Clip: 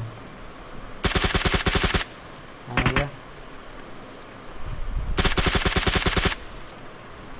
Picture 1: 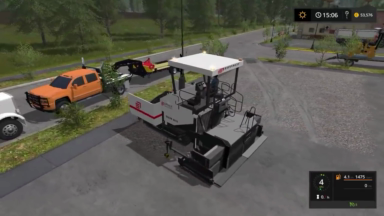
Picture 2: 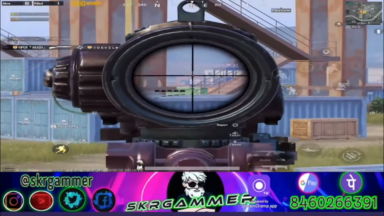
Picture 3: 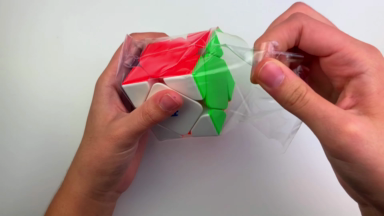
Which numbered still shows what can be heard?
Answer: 2